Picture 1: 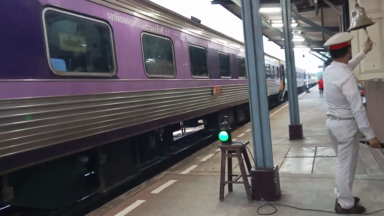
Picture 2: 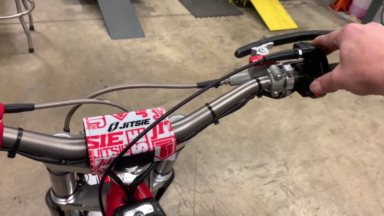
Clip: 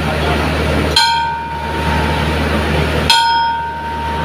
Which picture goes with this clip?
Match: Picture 1